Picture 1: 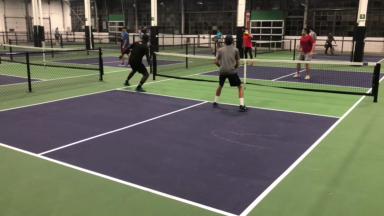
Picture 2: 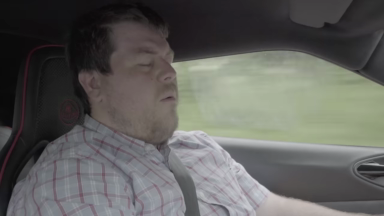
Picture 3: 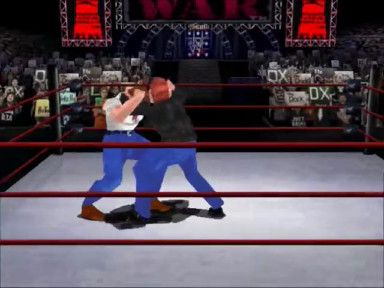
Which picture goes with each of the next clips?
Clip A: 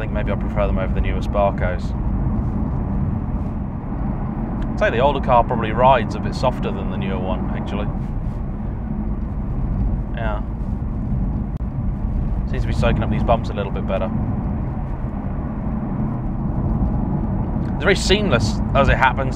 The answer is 2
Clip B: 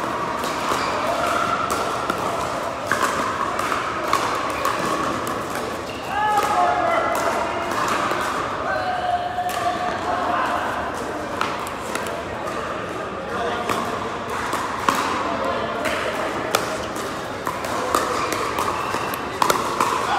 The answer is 1